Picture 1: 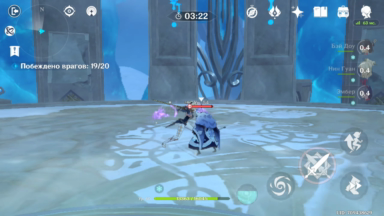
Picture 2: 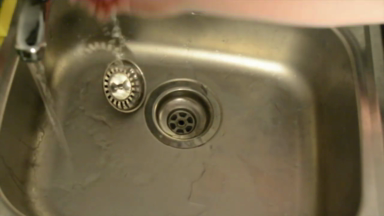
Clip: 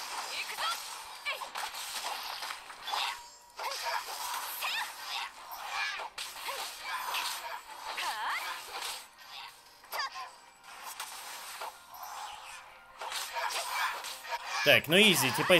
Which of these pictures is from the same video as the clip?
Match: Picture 1